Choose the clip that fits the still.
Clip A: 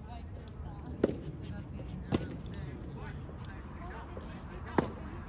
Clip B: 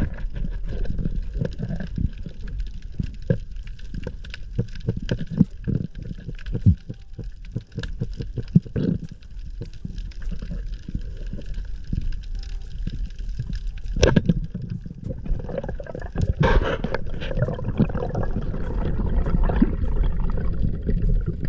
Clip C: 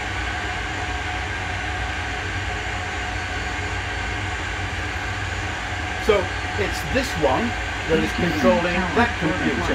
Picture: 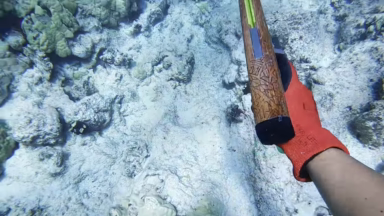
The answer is B